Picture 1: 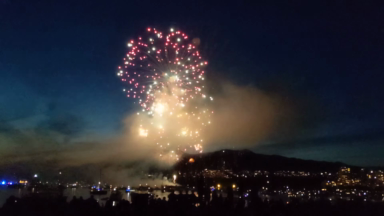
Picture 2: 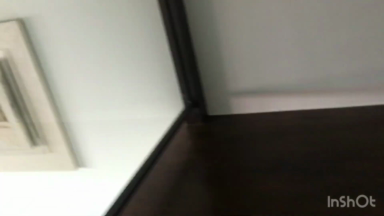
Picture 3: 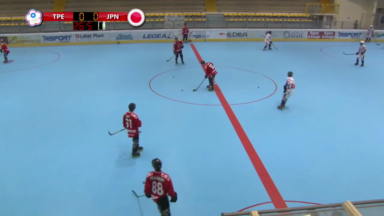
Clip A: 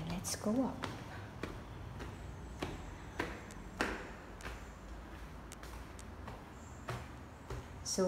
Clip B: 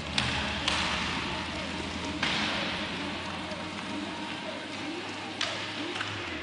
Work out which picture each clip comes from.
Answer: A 2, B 3